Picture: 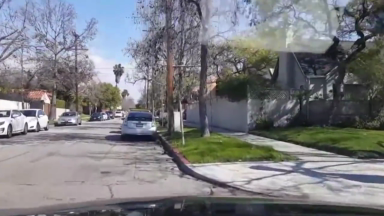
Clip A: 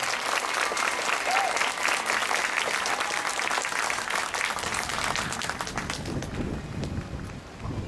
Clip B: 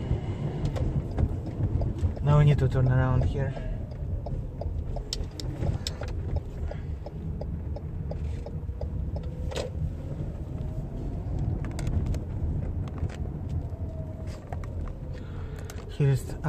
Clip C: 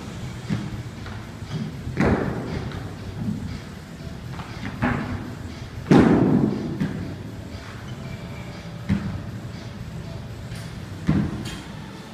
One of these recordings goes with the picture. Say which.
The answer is B